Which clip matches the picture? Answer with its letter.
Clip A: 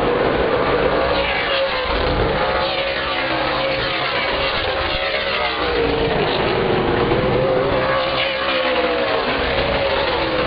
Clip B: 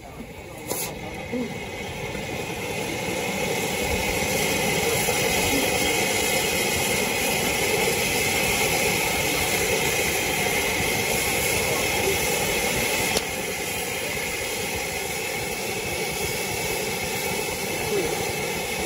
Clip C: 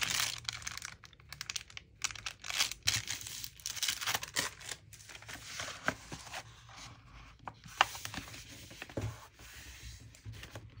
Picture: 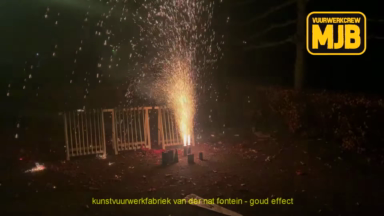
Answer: B